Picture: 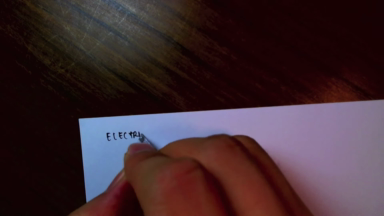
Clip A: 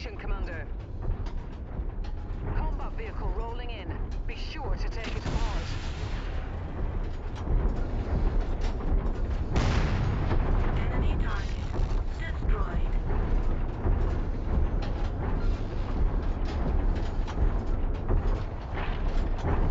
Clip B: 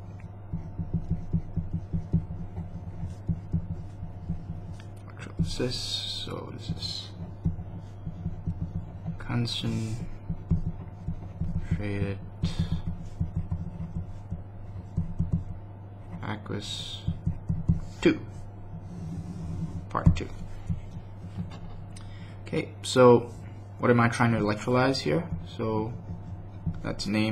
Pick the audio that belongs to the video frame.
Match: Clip B